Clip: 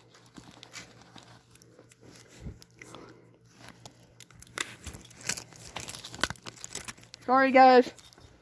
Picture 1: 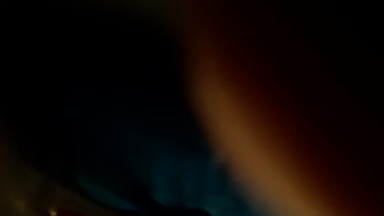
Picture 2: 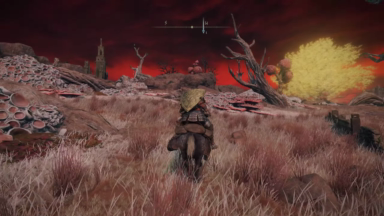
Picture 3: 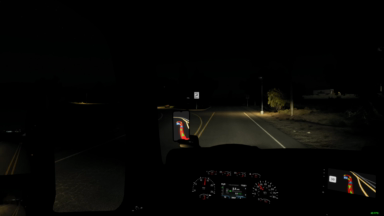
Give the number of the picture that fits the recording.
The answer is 1